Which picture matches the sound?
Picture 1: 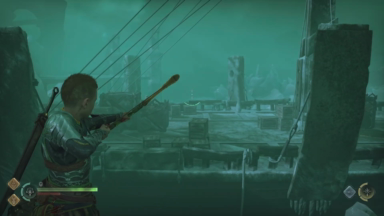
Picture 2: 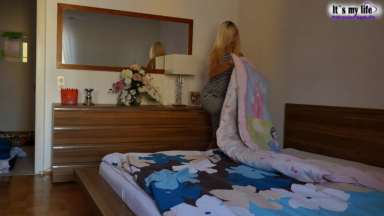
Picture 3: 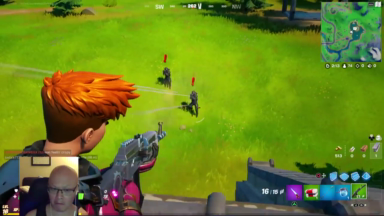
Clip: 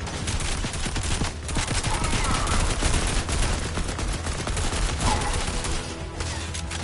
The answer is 3